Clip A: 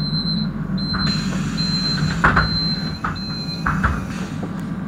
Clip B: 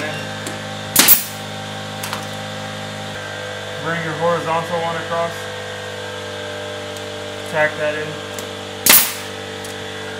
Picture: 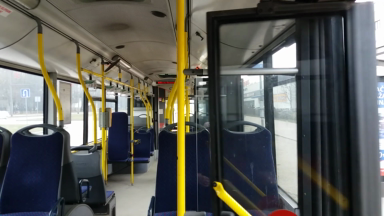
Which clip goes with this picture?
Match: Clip A